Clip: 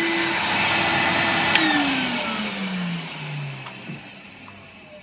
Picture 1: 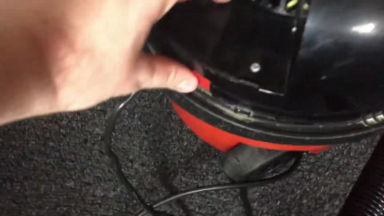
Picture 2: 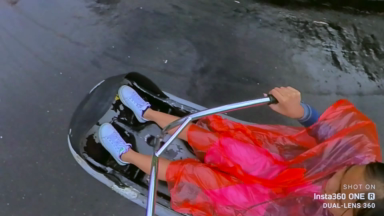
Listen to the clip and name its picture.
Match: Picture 1